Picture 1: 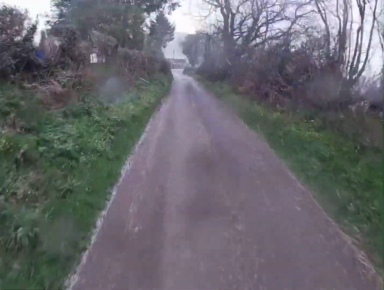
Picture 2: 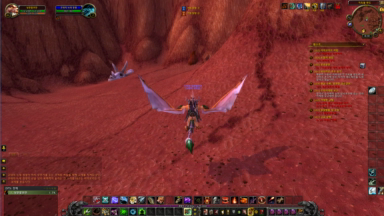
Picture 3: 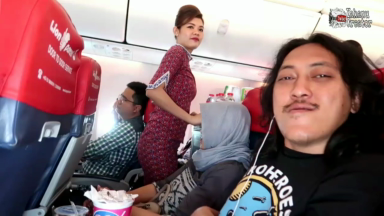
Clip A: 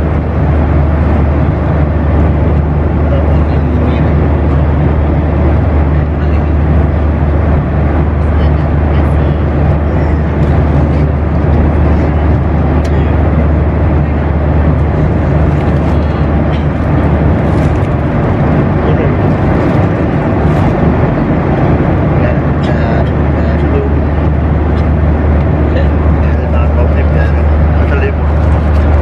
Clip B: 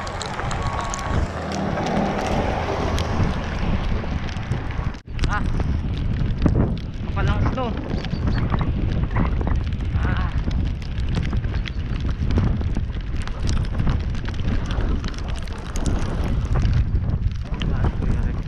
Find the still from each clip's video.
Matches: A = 3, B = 1